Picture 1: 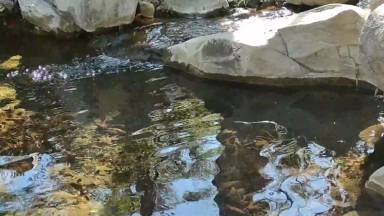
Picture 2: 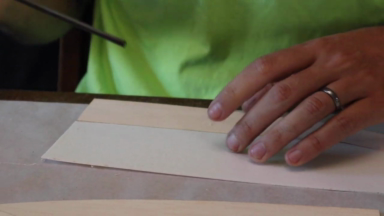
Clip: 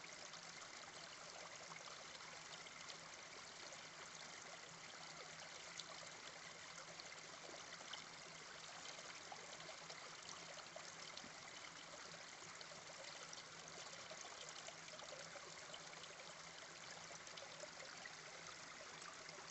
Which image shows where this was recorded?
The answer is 1